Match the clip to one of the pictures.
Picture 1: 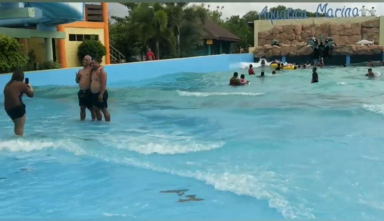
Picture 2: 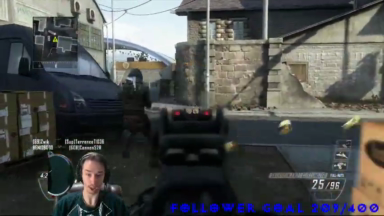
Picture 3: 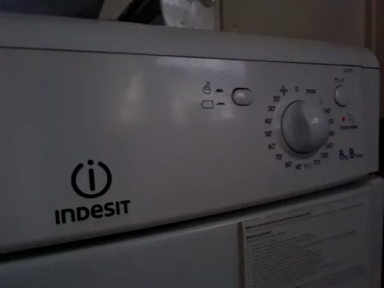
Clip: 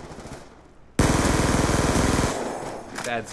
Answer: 2